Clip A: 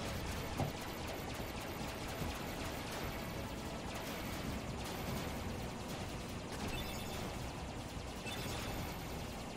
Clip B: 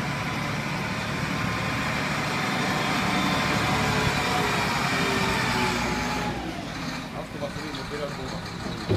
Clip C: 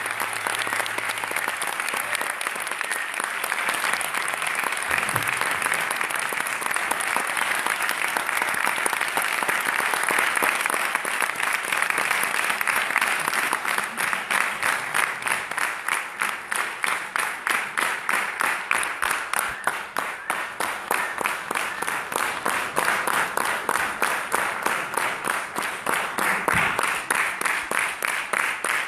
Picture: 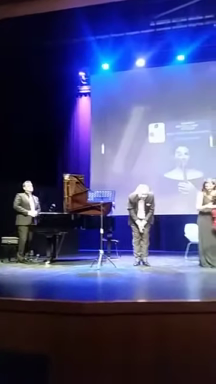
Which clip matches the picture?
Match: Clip C